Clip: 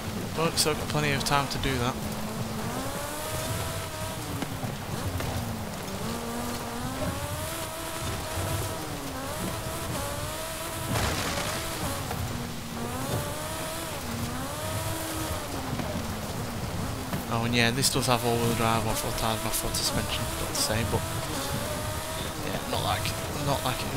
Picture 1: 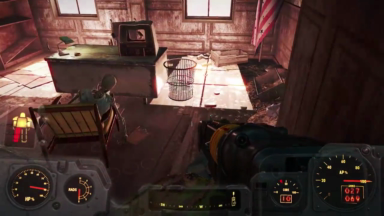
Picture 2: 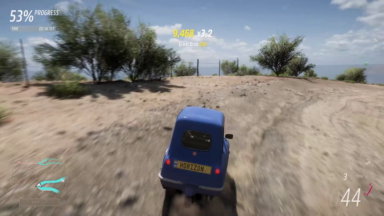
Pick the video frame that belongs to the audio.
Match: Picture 2